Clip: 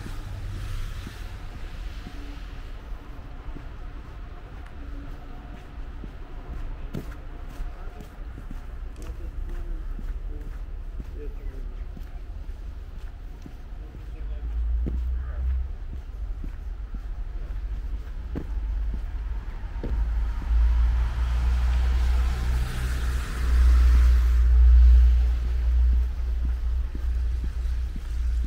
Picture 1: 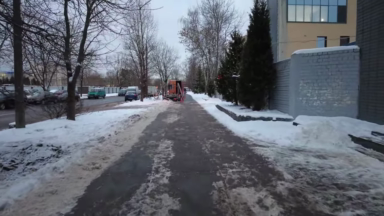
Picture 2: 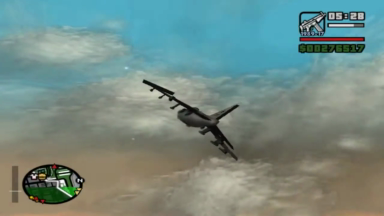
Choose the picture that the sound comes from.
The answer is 1